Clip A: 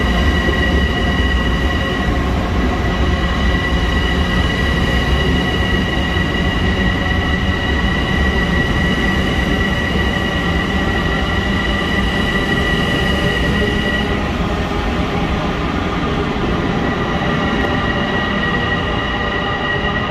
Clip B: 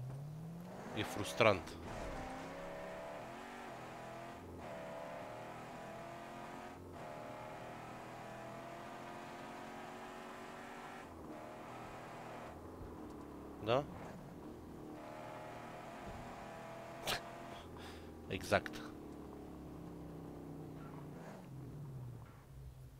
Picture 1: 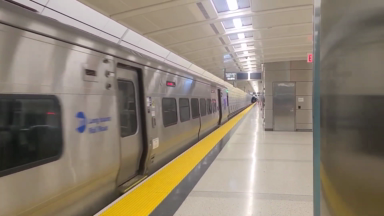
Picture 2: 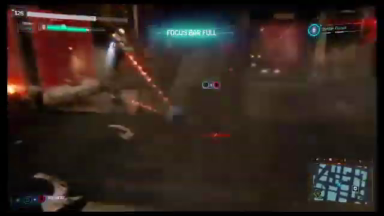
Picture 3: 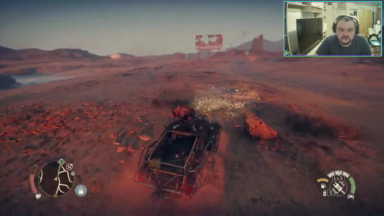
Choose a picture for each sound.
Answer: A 1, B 3